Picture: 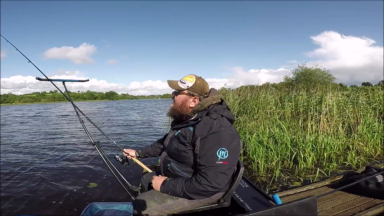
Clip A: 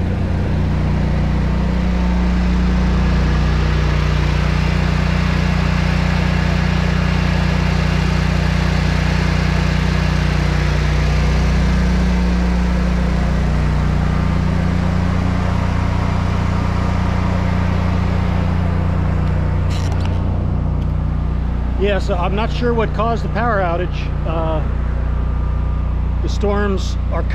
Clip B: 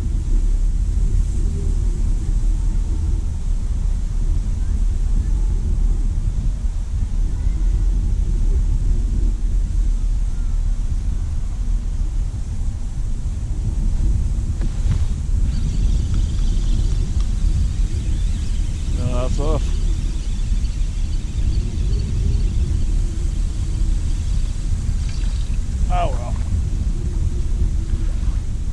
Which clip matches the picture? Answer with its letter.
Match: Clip B